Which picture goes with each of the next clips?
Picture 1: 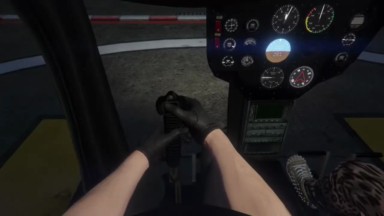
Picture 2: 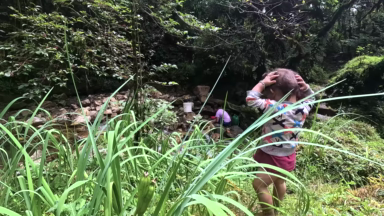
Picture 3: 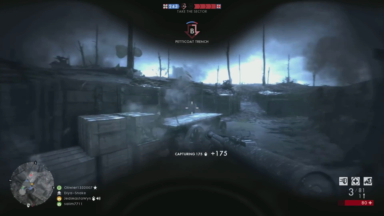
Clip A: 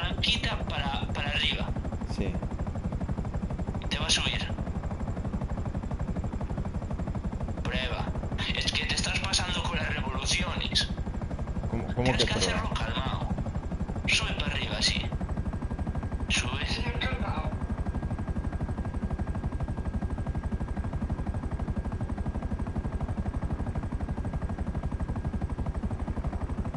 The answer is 1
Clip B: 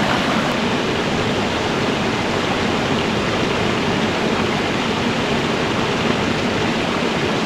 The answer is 2